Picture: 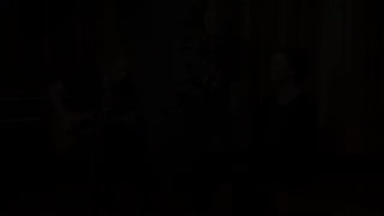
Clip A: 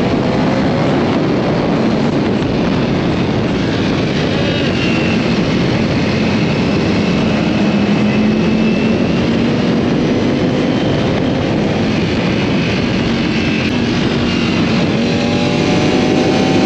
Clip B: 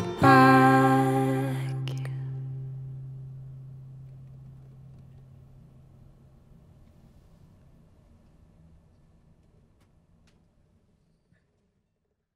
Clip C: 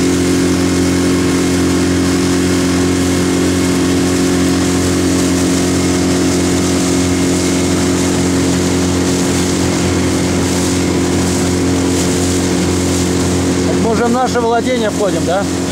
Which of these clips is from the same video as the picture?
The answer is B